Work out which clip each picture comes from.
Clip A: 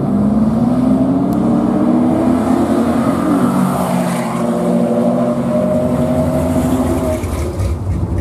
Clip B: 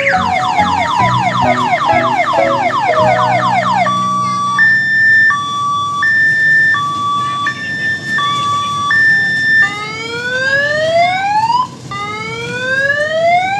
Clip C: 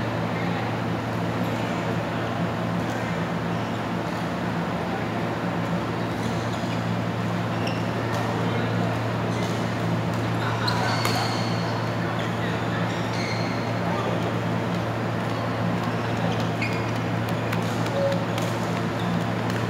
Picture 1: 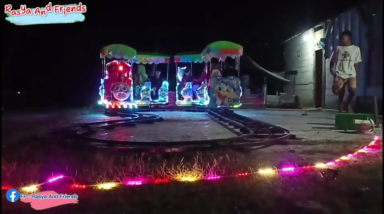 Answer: B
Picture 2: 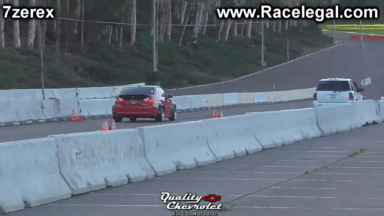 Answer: A